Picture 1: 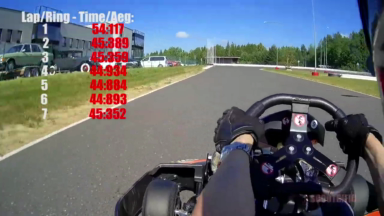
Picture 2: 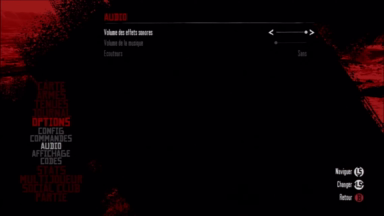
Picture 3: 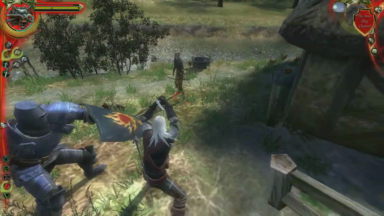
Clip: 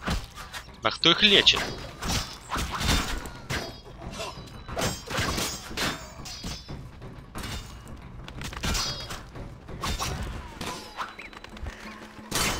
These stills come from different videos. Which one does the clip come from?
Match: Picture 3